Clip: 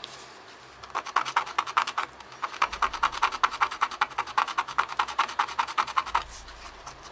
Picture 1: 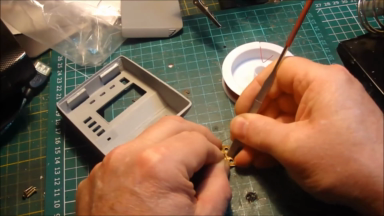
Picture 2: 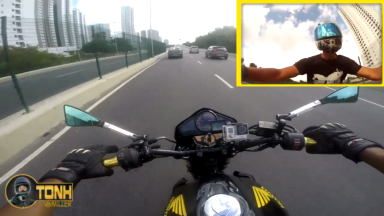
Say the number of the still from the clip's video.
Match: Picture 1